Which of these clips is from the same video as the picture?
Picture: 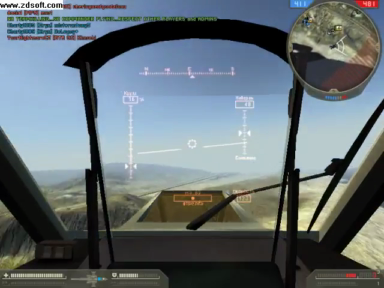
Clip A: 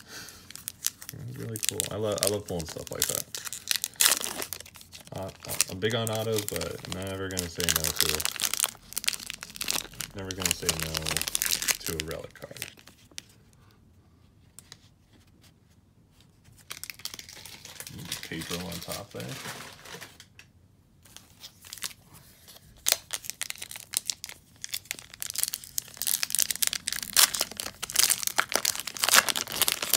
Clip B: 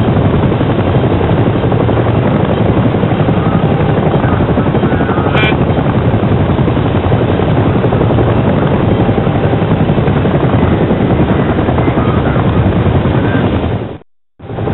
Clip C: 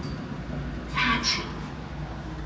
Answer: B